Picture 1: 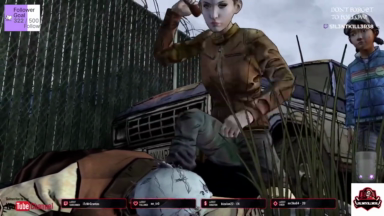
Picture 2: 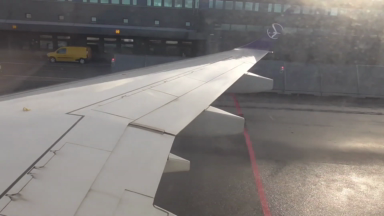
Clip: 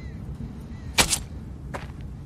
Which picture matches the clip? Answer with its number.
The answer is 1